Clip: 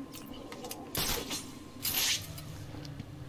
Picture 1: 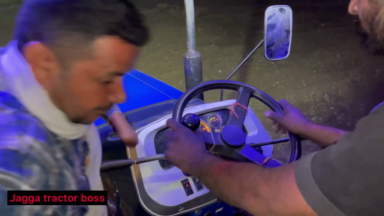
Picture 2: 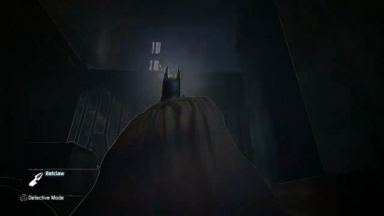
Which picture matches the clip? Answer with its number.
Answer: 2